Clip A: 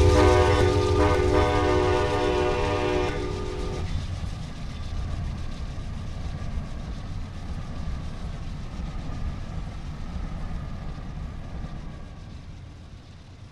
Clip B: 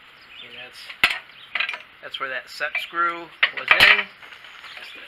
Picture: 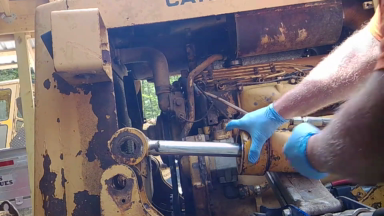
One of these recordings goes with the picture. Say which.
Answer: B